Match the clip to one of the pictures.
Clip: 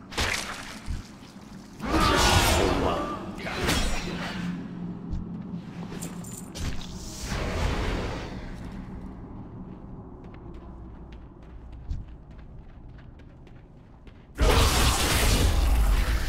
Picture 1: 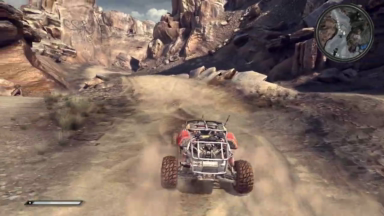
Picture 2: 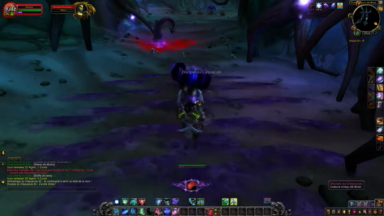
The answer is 2